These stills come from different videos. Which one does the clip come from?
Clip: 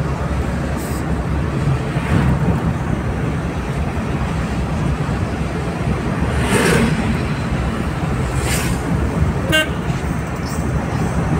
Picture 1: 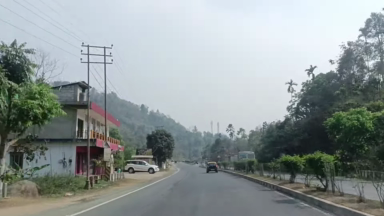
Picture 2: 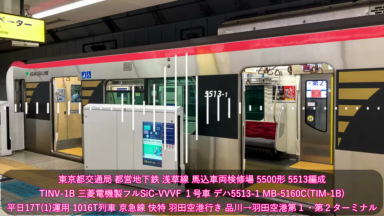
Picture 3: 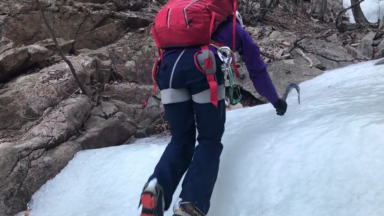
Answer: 1